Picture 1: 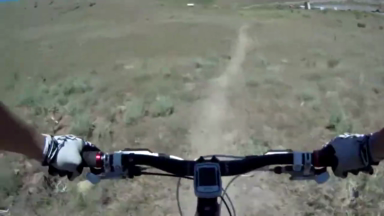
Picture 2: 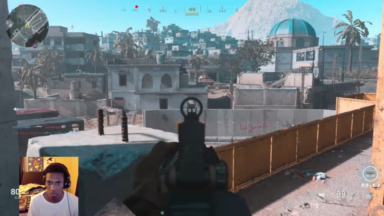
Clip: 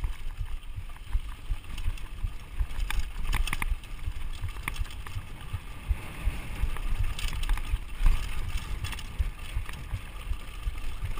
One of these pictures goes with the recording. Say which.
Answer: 1